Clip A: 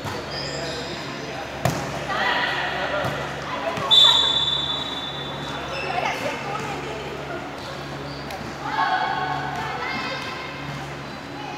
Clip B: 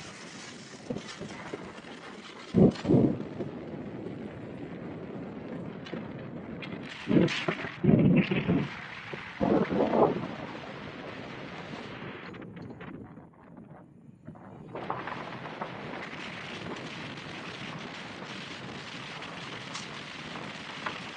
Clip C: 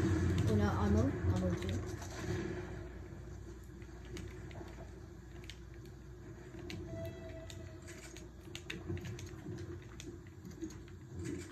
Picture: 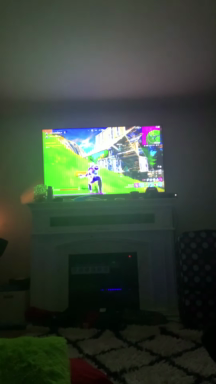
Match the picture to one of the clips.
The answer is C